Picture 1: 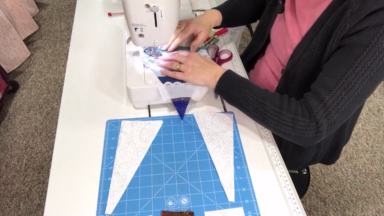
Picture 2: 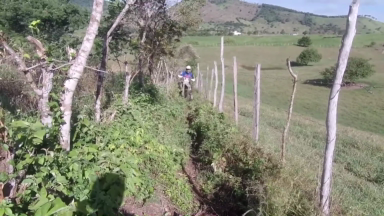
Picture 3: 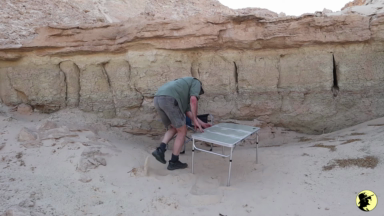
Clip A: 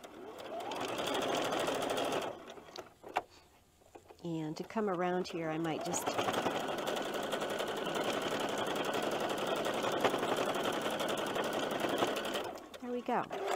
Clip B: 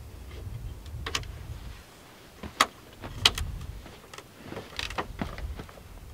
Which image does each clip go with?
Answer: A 1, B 3